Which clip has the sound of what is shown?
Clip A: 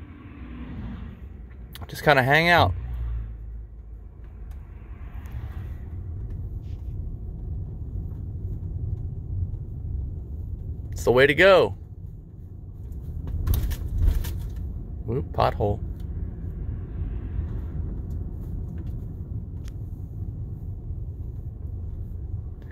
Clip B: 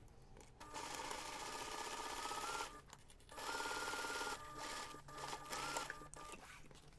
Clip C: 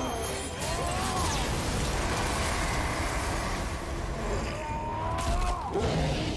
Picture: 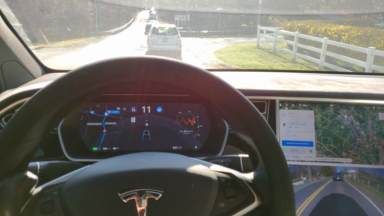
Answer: A